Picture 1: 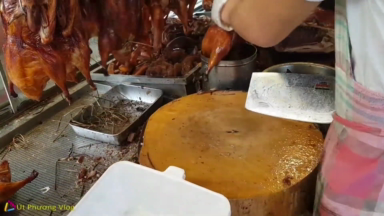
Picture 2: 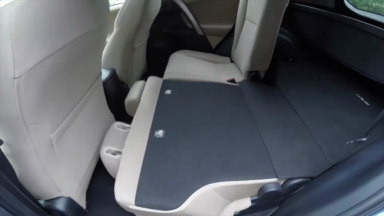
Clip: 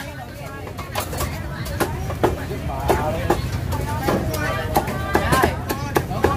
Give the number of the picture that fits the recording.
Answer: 1